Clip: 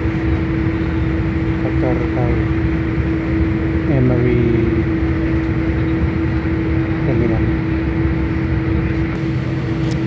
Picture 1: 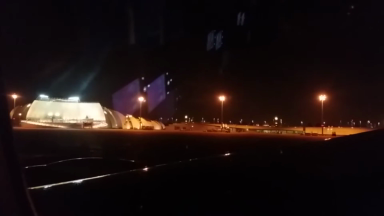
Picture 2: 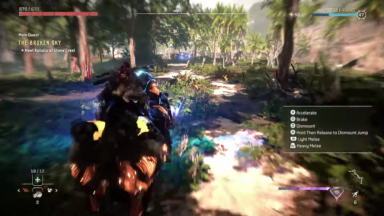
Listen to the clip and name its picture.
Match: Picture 1